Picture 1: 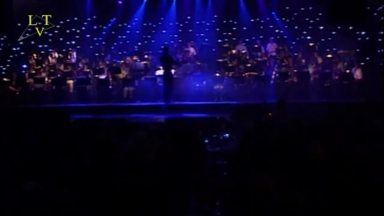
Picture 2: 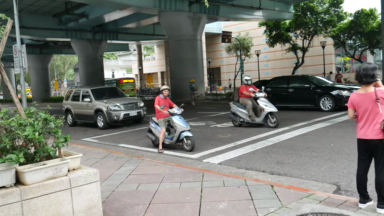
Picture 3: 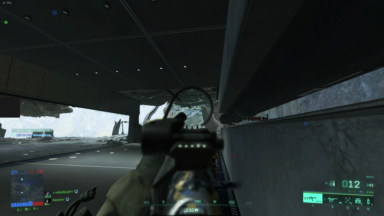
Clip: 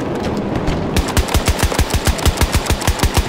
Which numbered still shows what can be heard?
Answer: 3